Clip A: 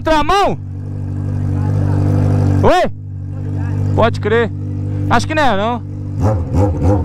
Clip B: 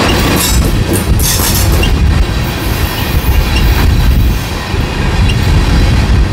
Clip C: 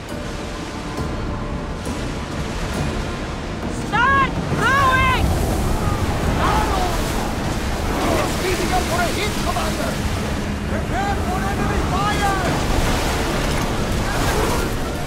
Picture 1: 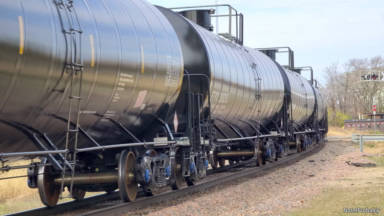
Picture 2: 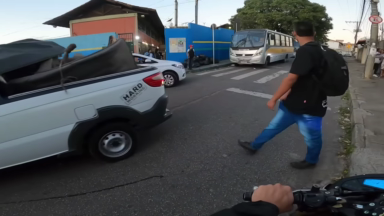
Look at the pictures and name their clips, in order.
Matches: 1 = B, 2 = A